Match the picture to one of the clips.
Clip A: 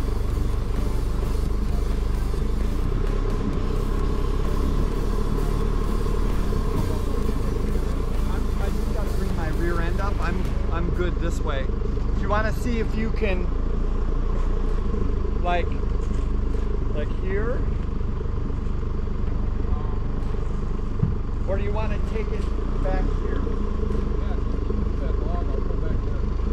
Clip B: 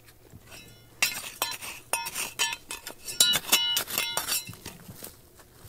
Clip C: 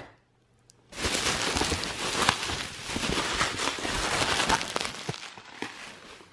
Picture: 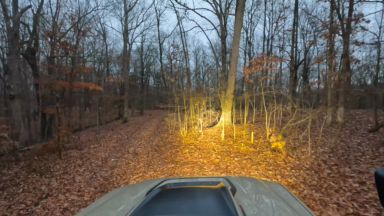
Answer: A